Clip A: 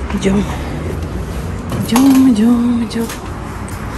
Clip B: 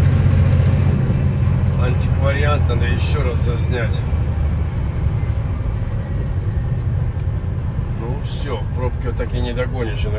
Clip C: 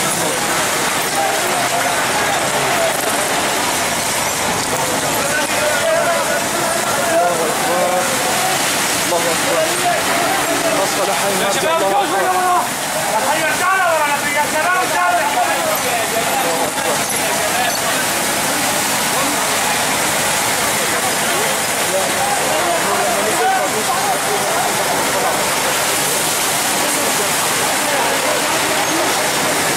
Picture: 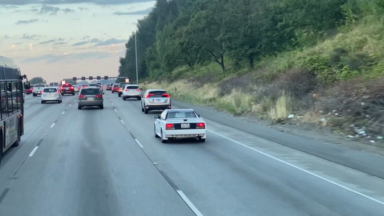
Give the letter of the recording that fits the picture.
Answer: B